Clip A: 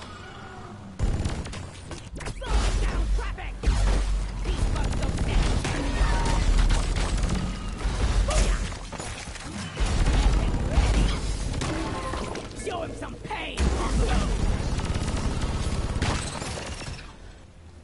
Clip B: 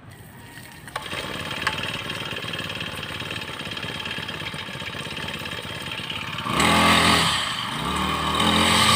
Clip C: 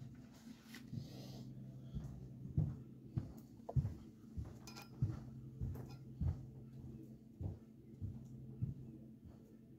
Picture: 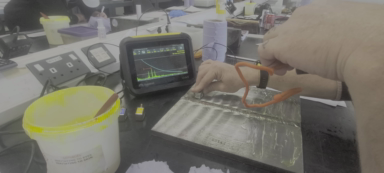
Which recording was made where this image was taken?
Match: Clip C